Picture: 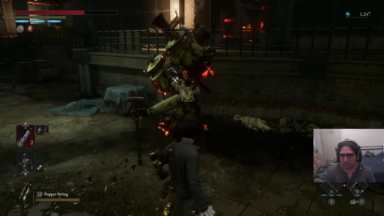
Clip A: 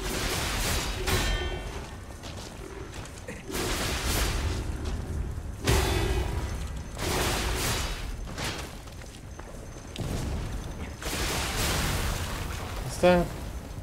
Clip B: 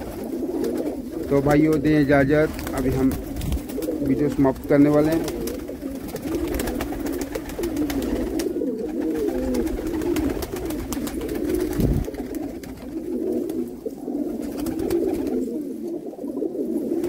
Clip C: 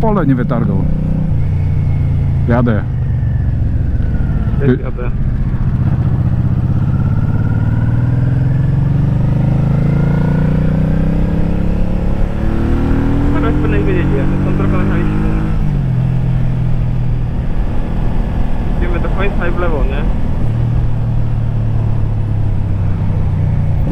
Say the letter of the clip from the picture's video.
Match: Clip A